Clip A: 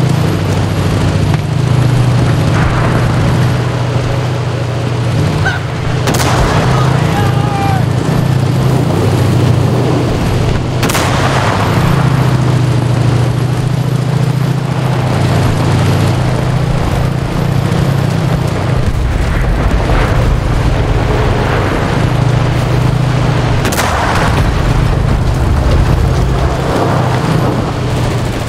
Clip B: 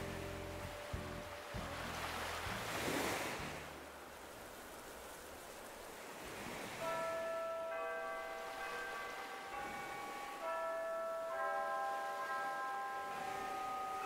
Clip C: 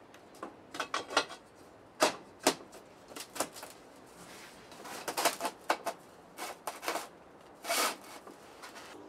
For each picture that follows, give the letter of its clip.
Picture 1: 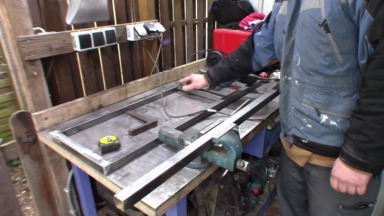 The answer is C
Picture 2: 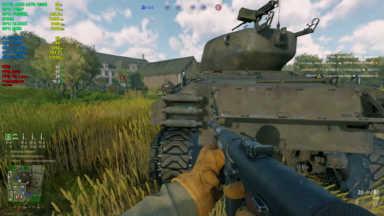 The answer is A